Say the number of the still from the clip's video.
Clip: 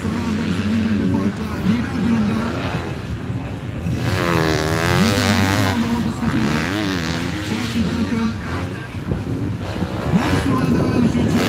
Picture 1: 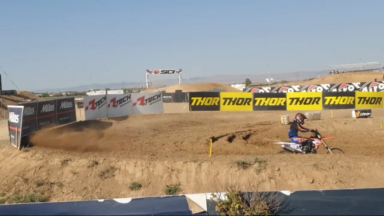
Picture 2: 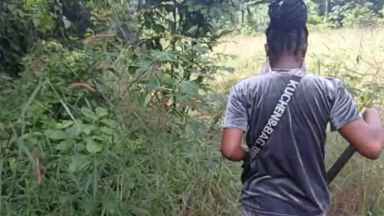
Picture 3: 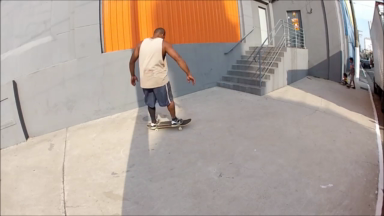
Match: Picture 1